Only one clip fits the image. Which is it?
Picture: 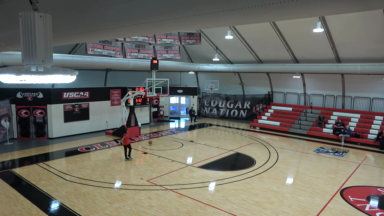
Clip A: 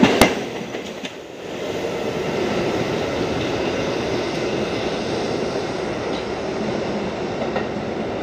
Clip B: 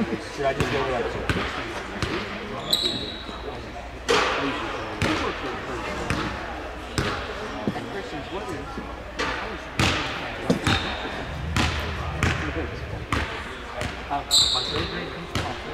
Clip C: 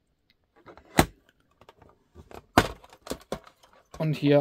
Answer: B